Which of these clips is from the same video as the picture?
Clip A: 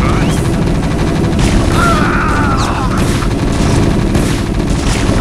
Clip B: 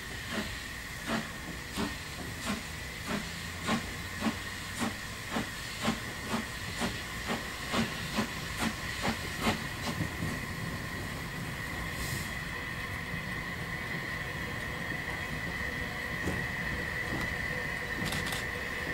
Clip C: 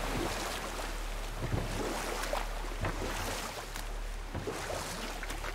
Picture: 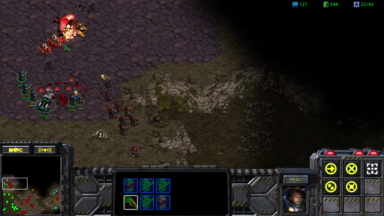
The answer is A